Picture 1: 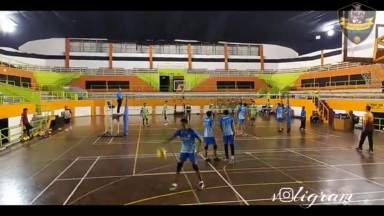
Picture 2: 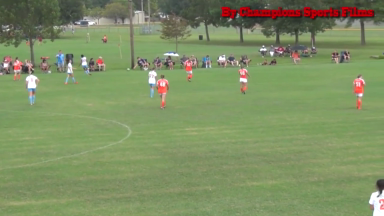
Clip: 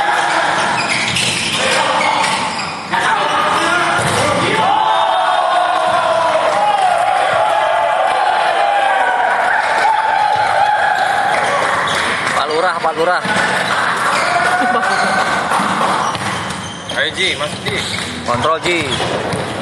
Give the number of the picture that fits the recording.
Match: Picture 1